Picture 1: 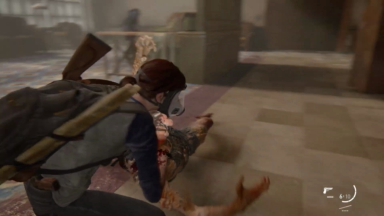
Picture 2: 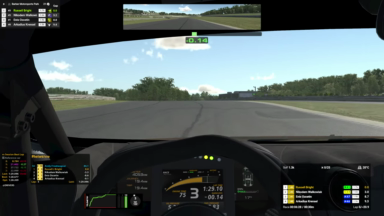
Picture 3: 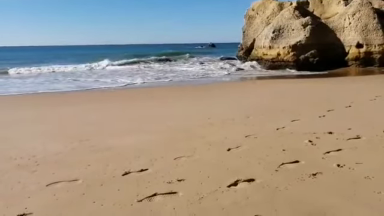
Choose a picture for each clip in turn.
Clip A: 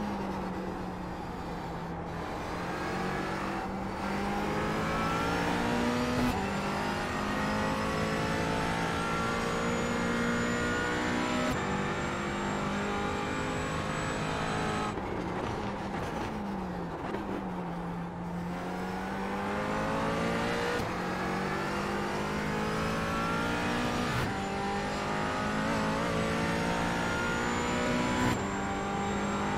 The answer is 2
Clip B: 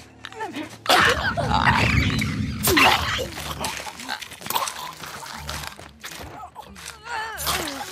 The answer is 1